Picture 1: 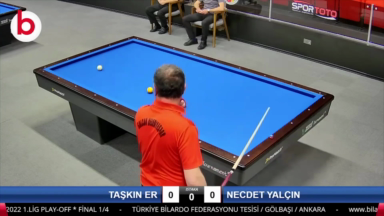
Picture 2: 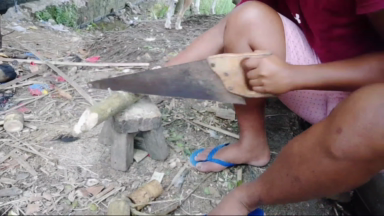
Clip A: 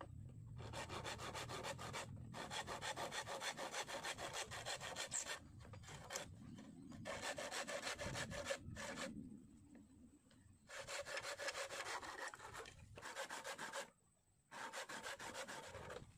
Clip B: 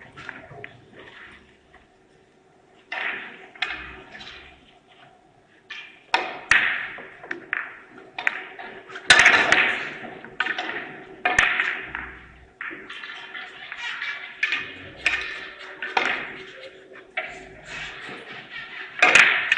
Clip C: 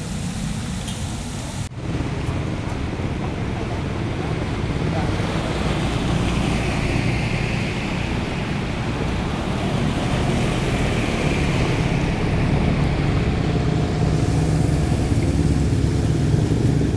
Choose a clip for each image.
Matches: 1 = B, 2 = A